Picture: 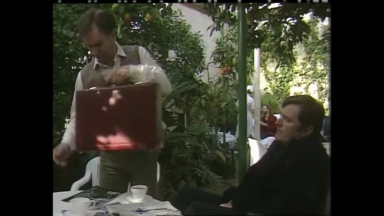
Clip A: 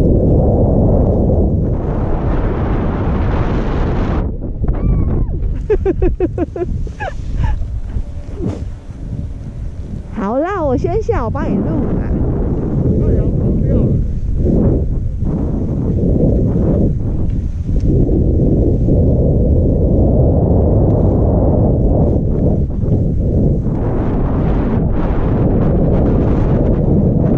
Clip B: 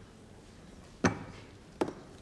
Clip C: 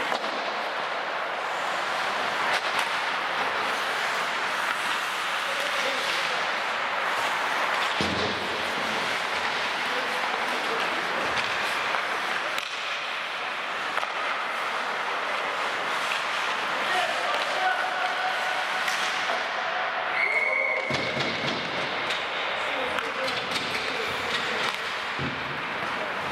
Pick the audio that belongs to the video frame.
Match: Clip B